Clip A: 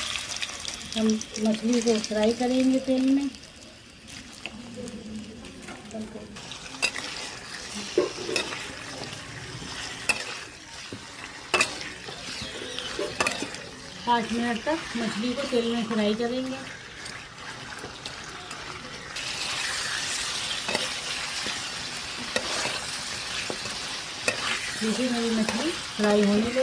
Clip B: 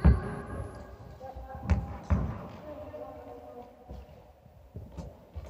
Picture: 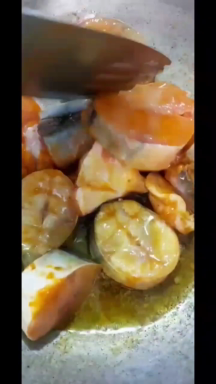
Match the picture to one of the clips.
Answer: A